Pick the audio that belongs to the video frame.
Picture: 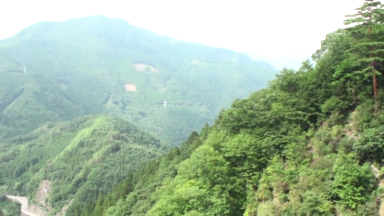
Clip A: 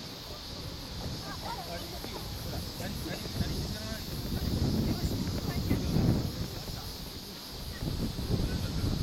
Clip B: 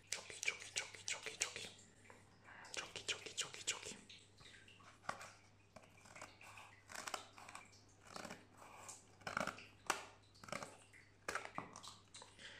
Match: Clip A